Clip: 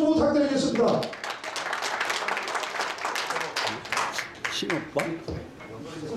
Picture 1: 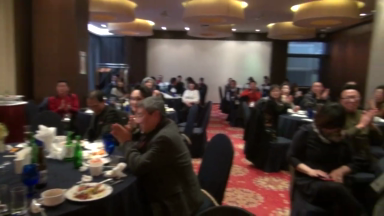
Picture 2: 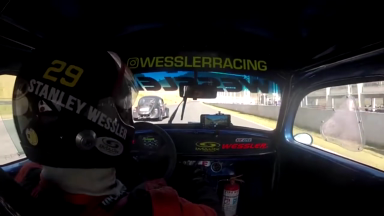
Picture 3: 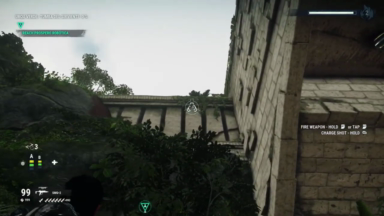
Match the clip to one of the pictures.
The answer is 1